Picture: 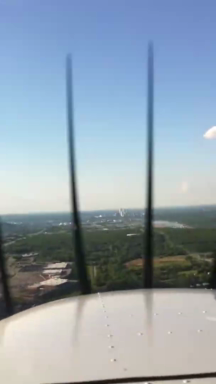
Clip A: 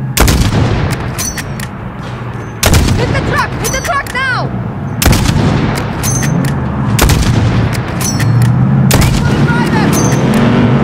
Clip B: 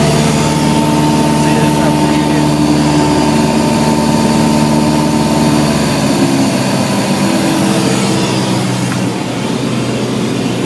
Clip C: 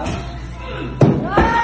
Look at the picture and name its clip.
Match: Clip B